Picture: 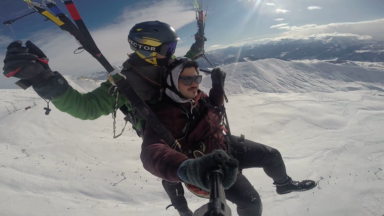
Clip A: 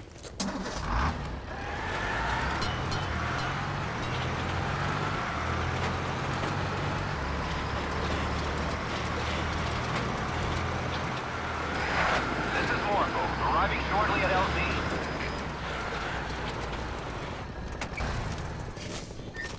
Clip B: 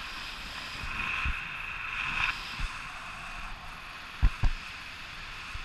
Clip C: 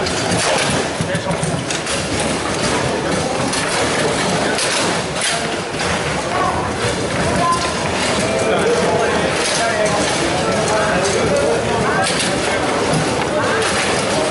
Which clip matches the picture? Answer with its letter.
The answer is B